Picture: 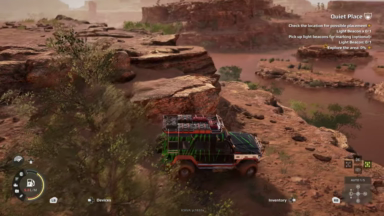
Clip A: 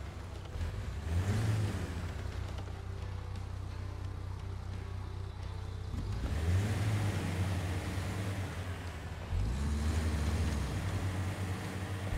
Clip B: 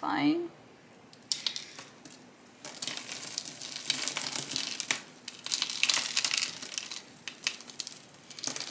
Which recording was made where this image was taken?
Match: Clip A